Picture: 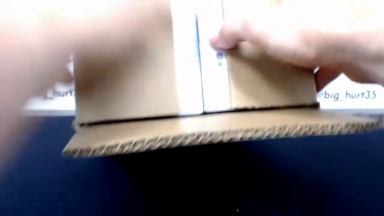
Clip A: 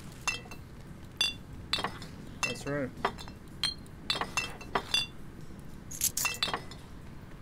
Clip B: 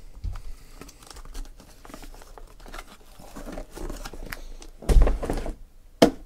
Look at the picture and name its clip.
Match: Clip B